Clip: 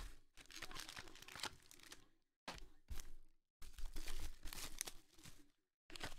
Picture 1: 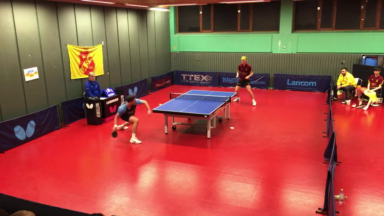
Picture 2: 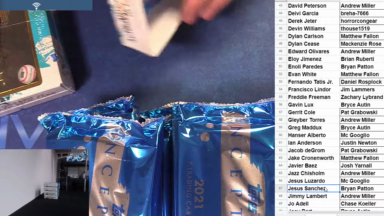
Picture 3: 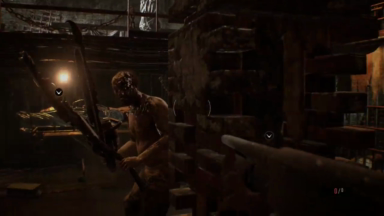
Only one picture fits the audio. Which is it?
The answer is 2